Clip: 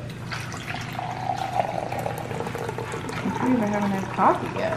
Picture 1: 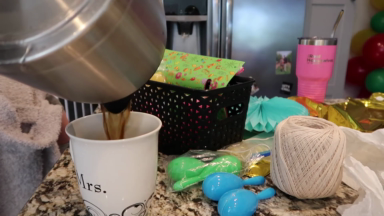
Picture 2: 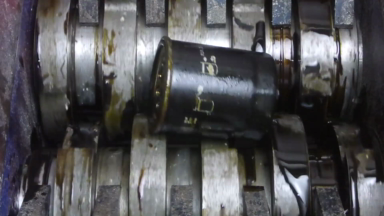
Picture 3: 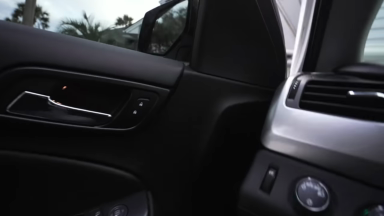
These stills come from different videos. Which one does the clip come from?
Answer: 1